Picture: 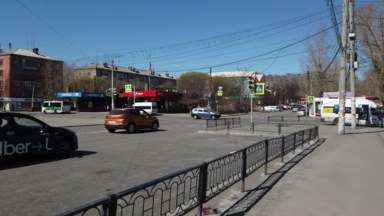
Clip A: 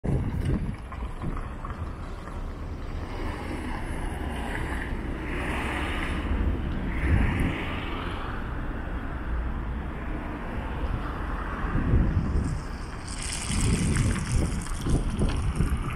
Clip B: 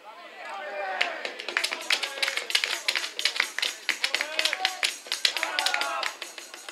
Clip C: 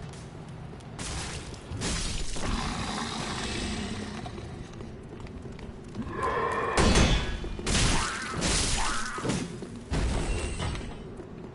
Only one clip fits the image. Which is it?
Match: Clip A